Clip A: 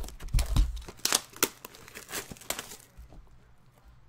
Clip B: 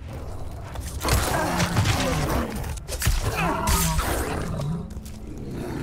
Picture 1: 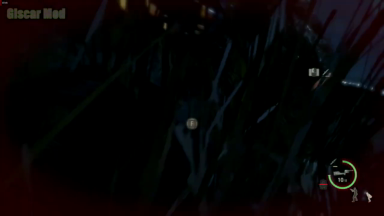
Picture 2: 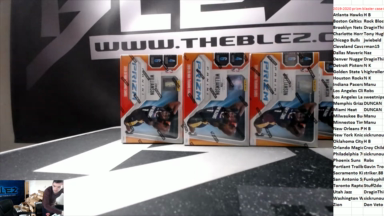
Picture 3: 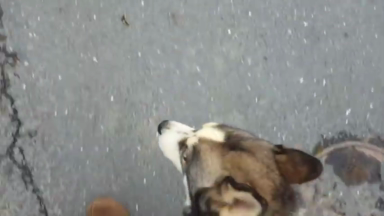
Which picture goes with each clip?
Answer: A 2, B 1